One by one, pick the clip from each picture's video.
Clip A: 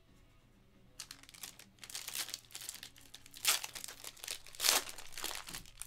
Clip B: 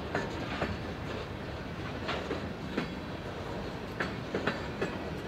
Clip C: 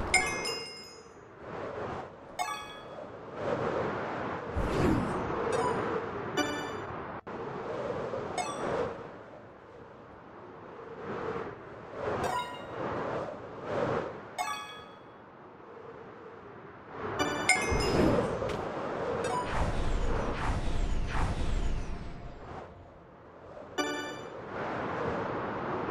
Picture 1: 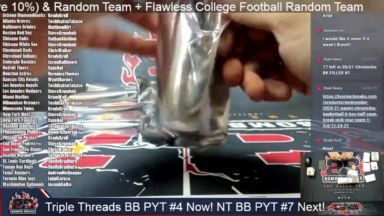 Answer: A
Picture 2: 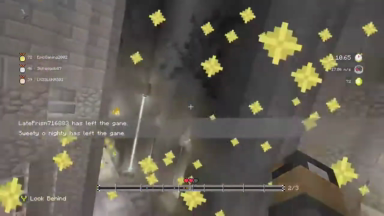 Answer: C